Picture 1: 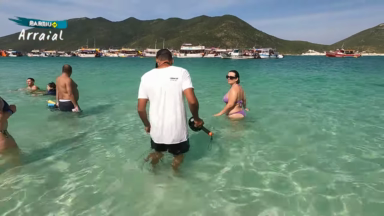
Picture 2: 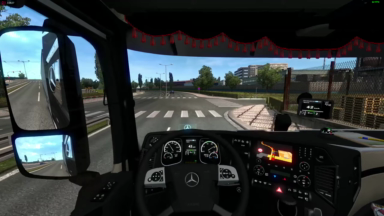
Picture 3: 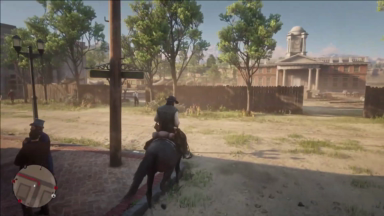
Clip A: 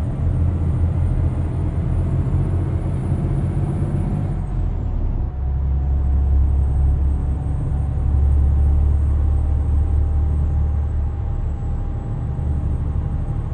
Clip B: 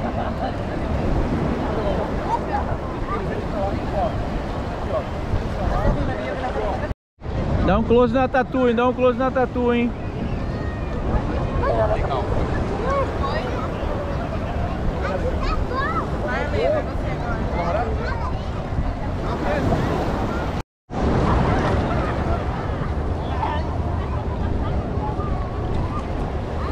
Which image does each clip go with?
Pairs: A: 2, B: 1